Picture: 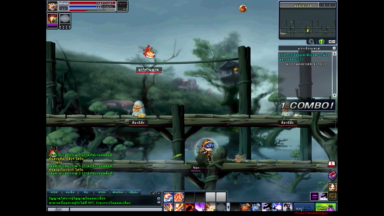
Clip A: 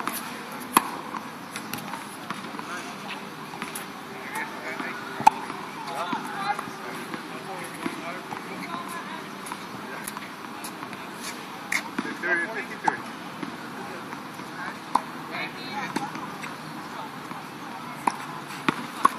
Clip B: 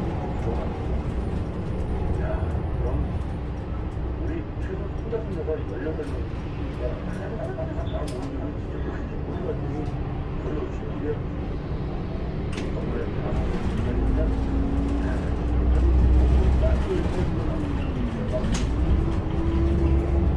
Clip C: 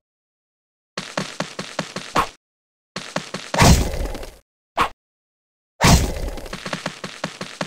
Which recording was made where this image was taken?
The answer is C